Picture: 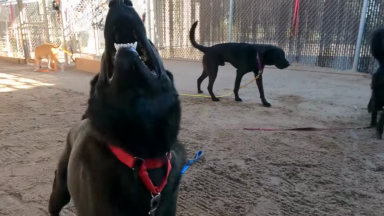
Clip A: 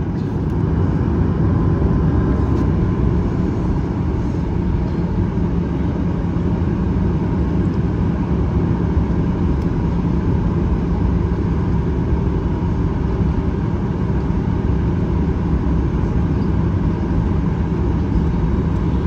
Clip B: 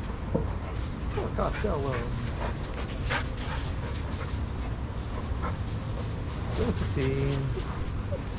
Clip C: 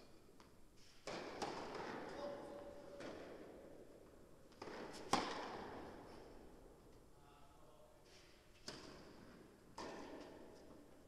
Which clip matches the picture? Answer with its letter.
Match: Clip B